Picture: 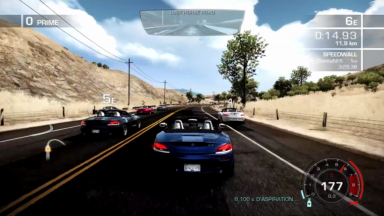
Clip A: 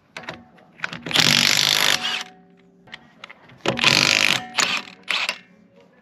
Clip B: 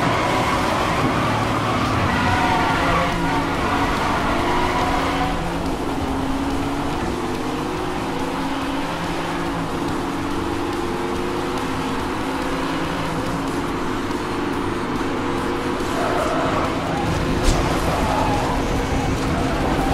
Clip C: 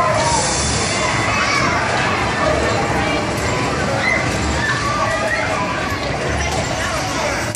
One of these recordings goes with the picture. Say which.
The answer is B